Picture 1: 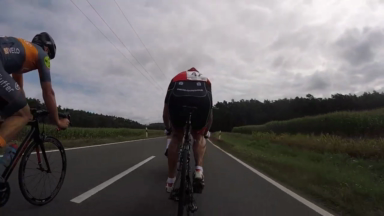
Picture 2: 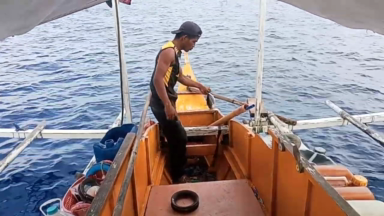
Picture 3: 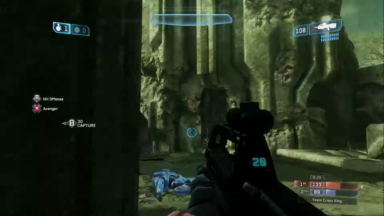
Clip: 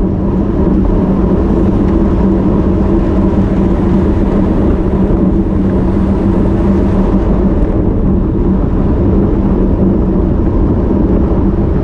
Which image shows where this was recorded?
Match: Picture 1